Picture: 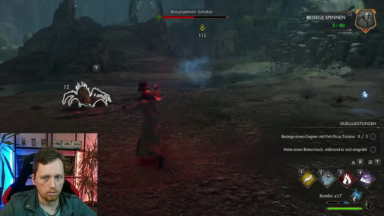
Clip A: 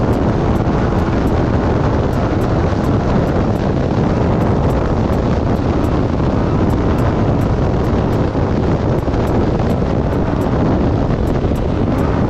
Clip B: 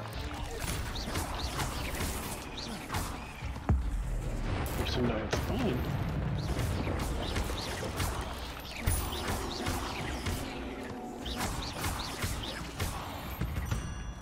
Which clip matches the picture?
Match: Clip B